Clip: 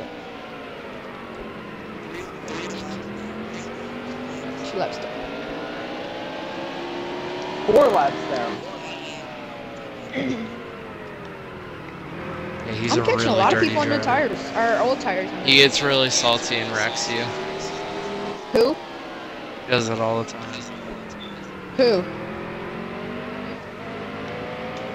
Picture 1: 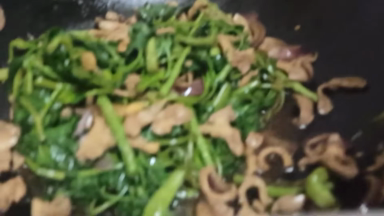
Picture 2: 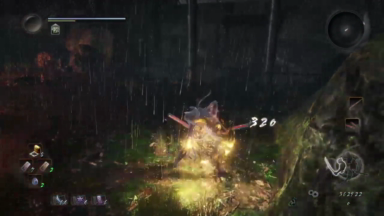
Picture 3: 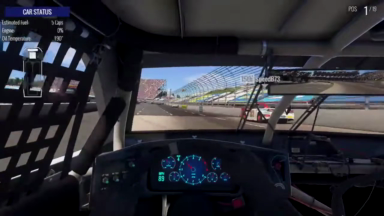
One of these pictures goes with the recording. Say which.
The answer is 3